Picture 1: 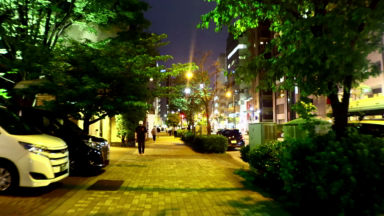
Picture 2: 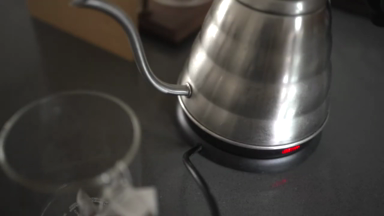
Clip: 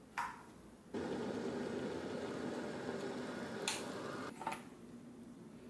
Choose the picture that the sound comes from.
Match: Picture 2